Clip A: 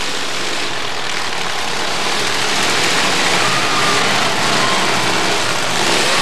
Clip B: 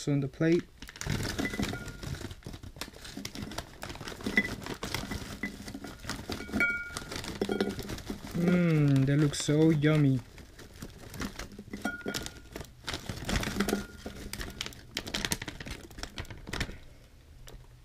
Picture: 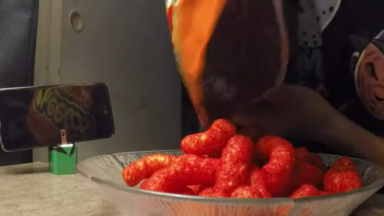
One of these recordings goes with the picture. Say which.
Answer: B